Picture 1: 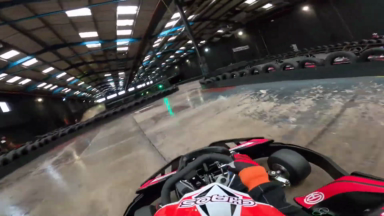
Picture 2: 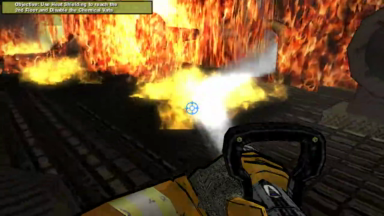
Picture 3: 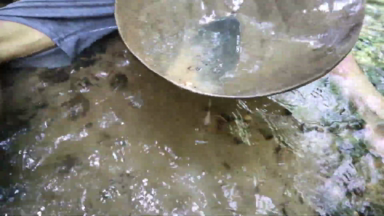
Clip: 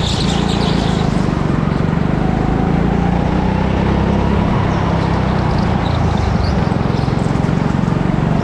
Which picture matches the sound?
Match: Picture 1